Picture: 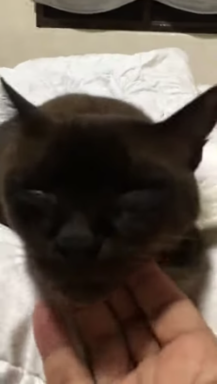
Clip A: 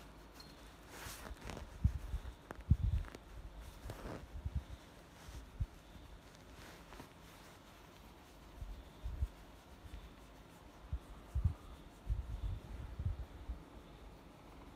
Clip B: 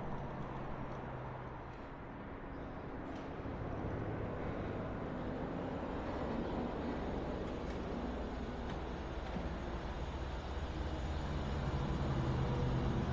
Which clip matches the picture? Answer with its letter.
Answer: A